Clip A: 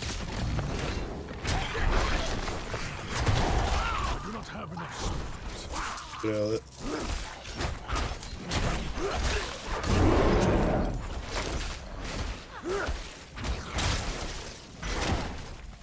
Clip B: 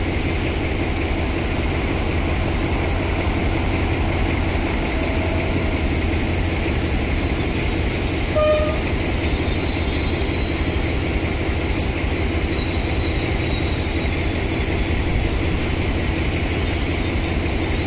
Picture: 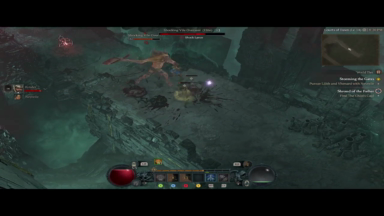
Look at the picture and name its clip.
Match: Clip A